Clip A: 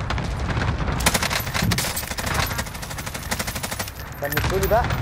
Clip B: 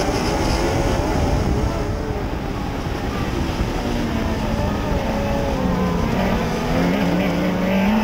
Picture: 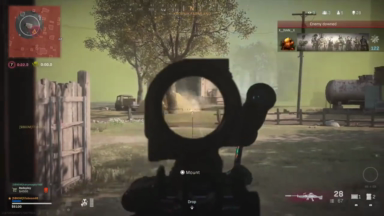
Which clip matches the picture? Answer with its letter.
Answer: A